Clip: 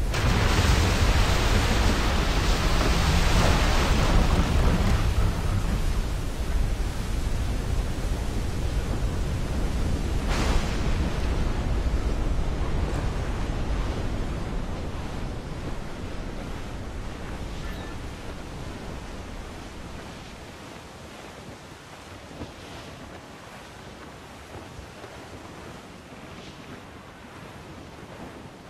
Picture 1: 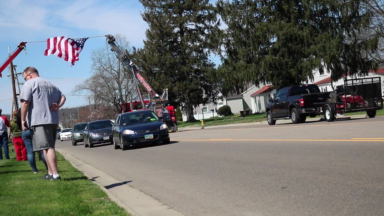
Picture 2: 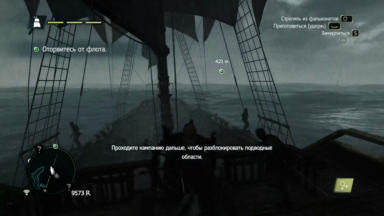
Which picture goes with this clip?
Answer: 2